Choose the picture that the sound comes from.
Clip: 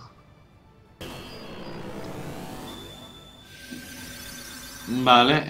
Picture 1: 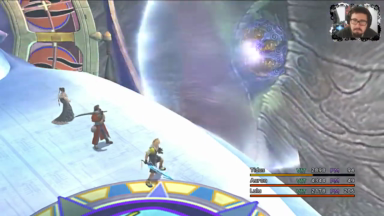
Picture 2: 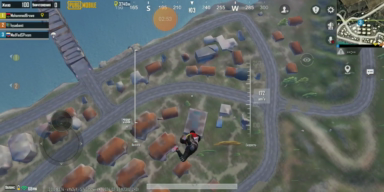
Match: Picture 1